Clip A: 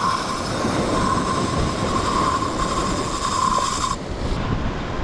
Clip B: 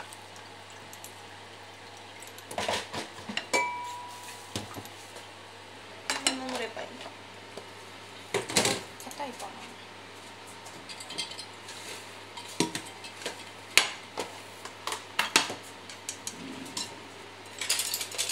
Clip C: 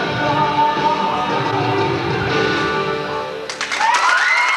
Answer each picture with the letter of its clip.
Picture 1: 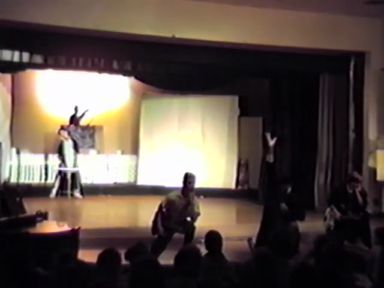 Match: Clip C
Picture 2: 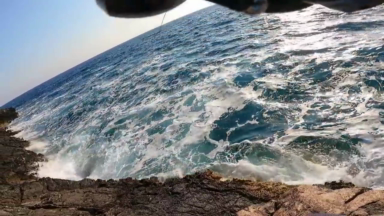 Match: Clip A